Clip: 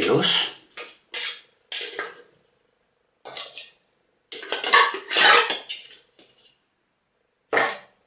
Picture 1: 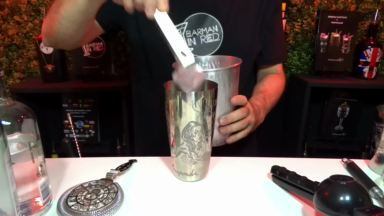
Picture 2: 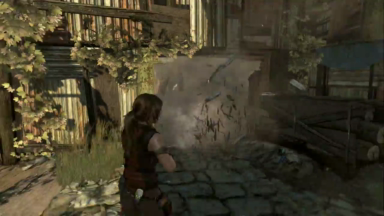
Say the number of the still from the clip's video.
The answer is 1